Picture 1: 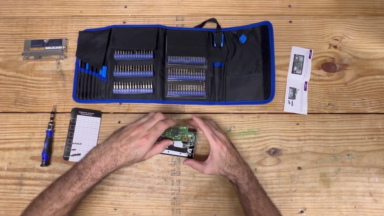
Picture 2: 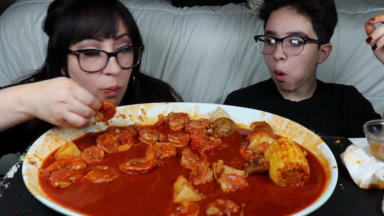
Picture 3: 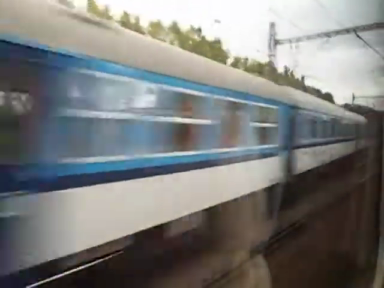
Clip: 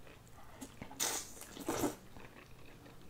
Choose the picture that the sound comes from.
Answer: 2